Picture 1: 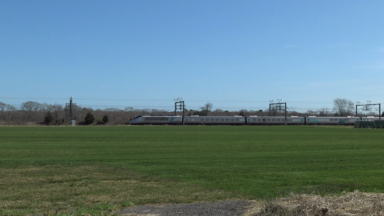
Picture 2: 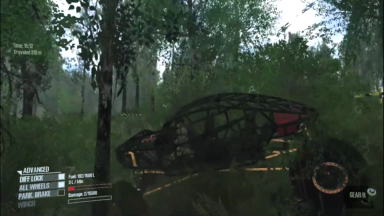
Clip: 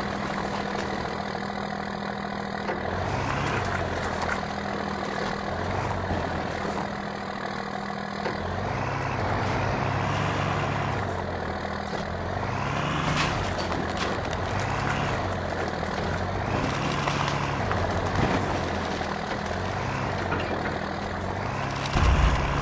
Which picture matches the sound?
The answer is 2